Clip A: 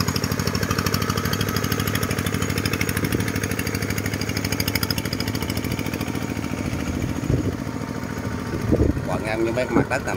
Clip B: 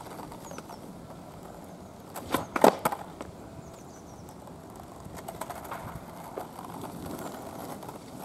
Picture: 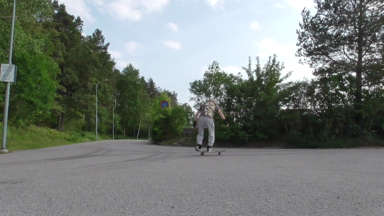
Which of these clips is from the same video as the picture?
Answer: B